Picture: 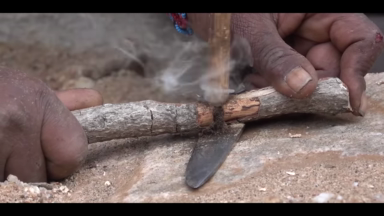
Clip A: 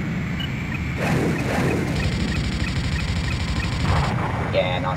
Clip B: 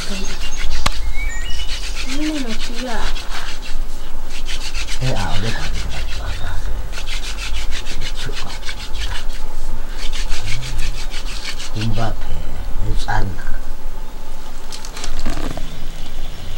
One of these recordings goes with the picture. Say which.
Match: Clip B